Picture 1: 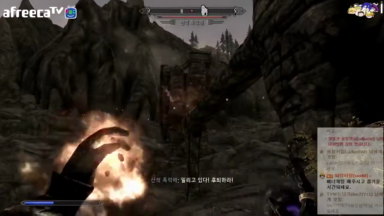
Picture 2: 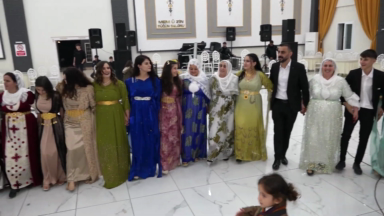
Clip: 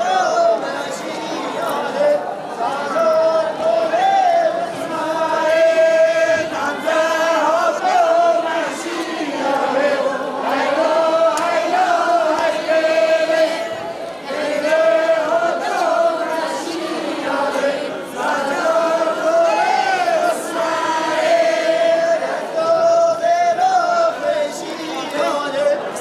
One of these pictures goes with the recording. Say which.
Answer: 2